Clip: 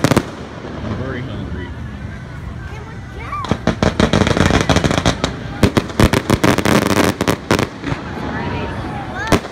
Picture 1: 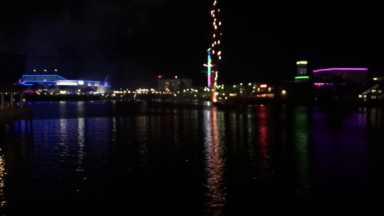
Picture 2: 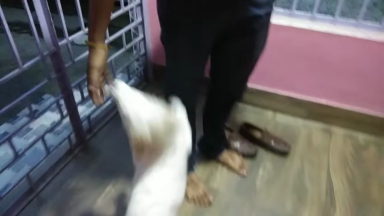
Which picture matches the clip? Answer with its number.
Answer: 1